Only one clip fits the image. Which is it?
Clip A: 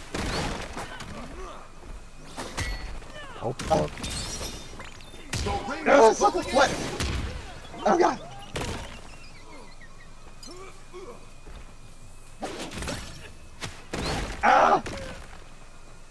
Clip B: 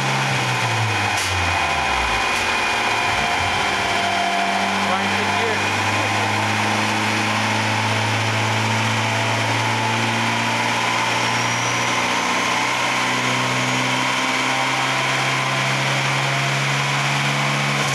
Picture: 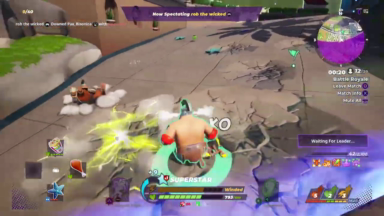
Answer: A